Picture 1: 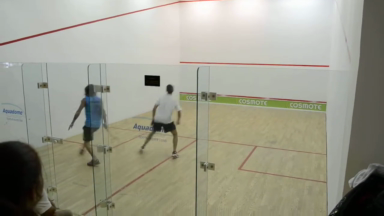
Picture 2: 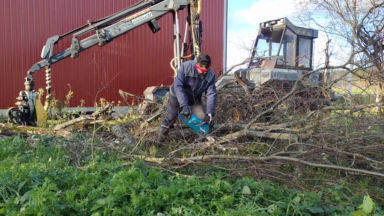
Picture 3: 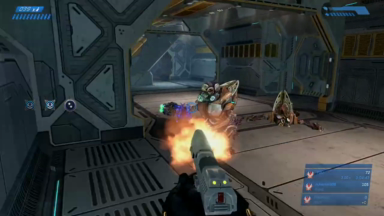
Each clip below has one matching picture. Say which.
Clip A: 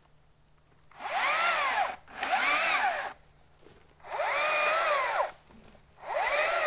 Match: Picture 2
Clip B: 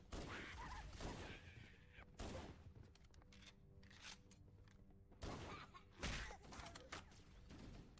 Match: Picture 3